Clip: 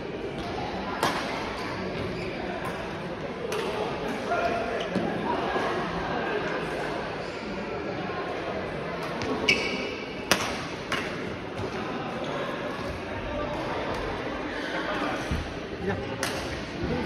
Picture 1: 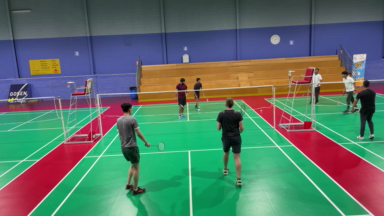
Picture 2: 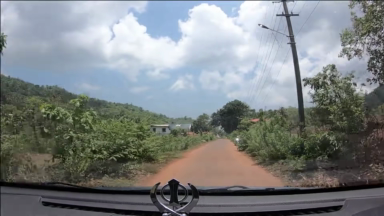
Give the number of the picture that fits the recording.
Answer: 1